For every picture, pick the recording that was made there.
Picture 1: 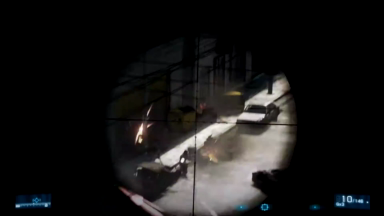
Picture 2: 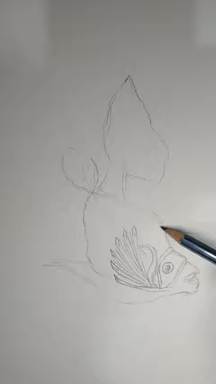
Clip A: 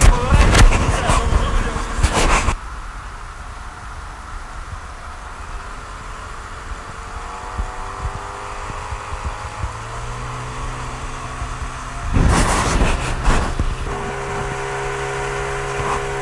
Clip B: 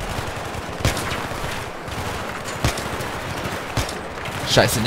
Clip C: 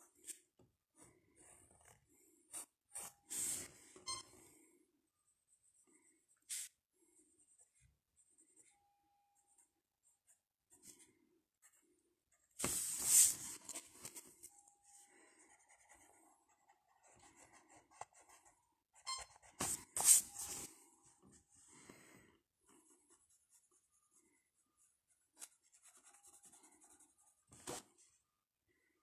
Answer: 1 B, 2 C